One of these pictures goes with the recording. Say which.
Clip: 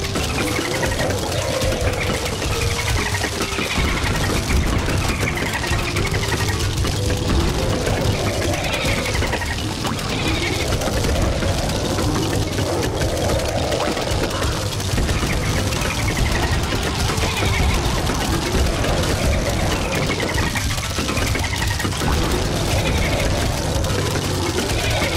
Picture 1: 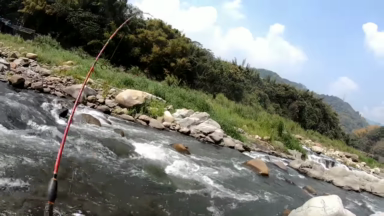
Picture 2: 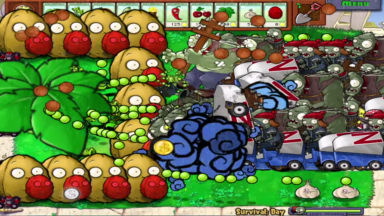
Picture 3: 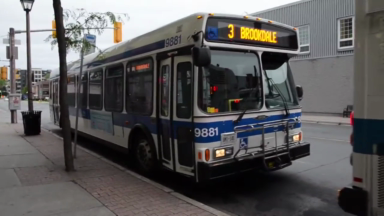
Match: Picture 2